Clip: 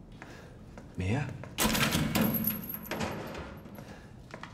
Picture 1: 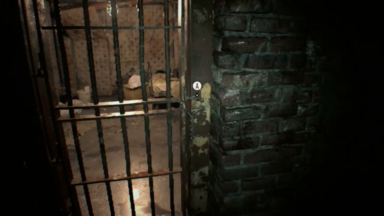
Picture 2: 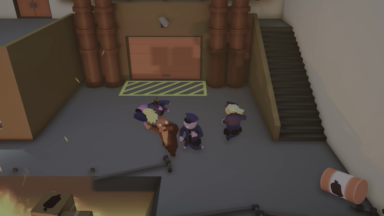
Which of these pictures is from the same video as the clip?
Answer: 1